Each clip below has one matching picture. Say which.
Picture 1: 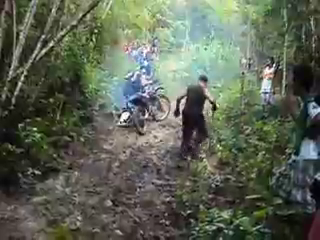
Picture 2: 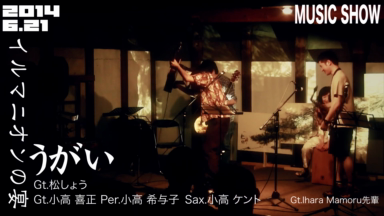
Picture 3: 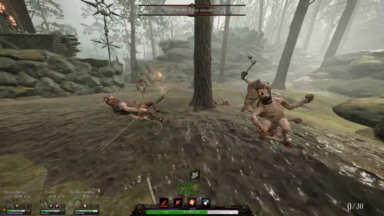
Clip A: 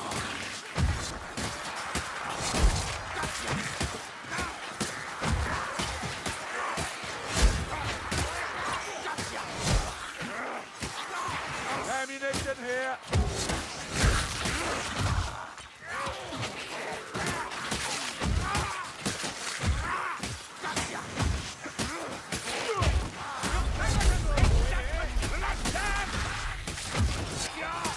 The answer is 3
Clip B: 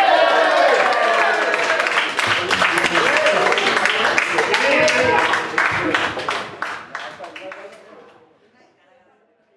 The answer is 2